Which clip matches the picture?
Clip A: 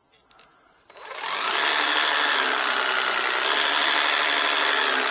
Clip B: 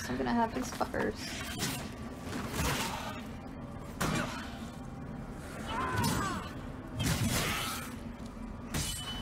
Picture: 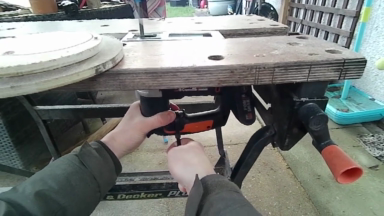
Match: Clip A